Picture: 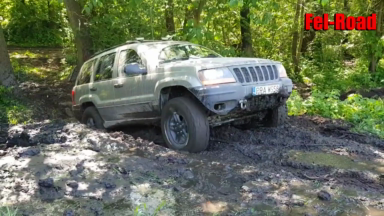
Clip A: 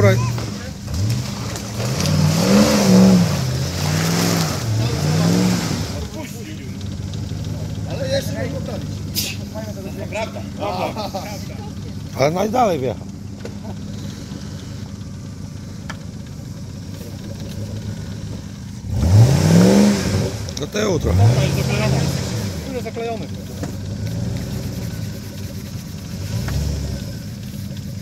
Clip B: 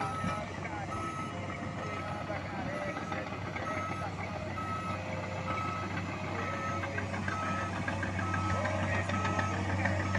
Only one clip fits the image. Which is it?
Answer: A